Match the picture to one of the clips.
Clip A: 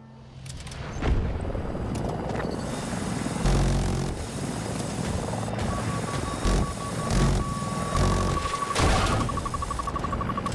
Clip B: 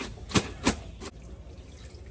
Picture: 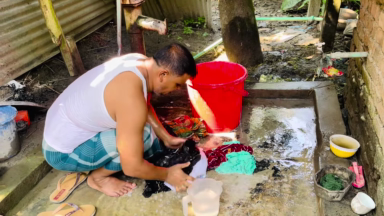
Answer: B